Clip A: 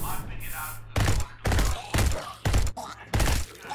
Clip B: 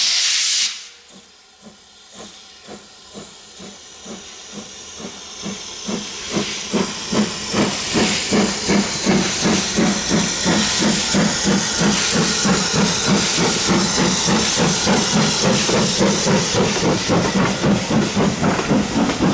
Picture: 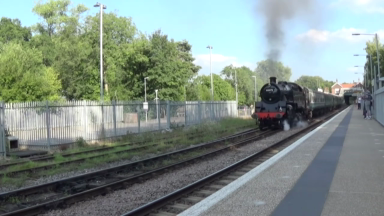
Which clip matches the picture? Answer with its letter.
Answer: B